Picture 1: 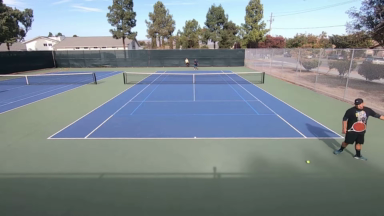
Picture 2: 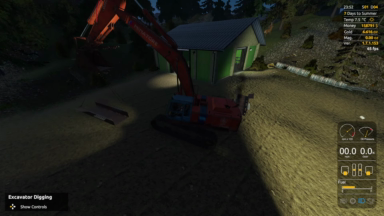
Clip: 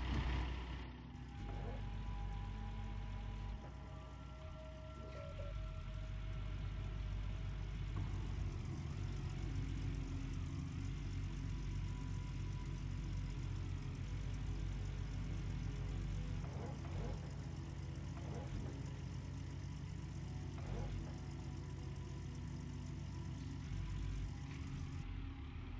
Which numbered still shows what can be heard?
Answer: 2